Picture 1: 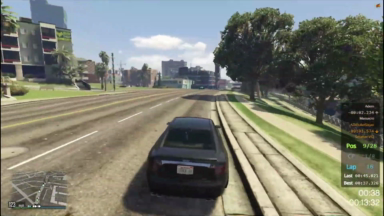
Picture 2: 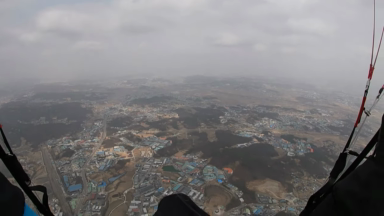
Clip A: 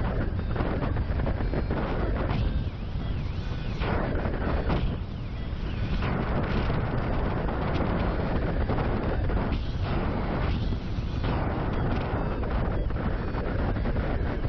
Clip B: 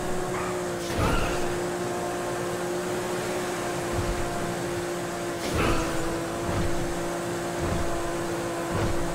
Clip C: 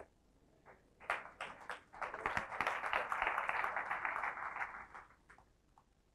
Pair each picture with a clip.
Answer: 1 B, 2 A